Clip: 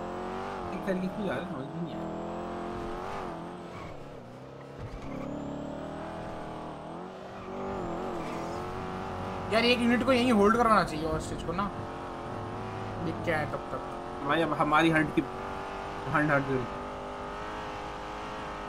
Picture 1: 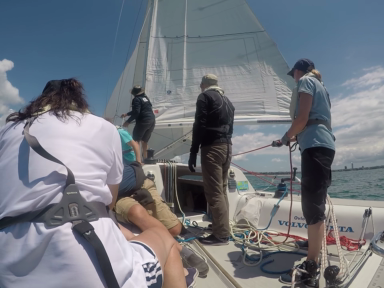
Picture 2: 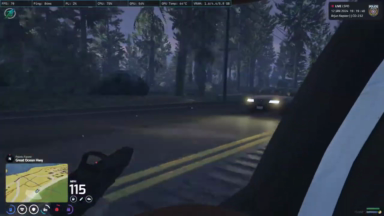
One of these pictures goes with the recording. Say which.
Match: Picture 2